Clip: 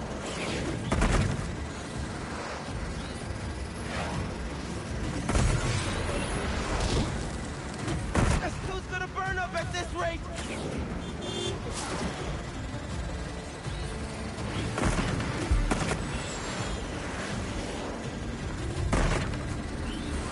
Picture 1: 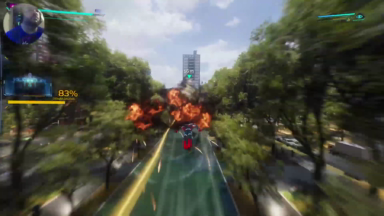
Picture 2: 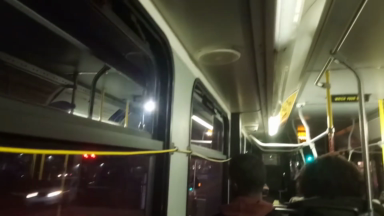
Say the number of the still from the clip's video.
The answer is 1